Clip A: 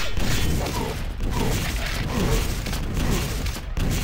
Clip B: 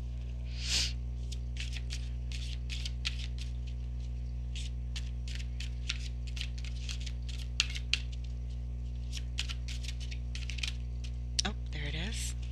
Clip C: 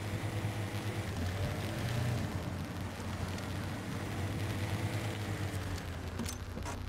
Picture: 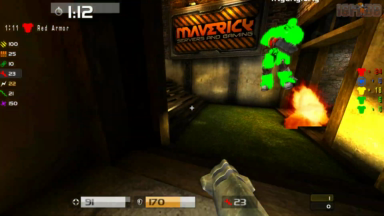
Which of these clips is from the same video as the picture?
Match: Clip A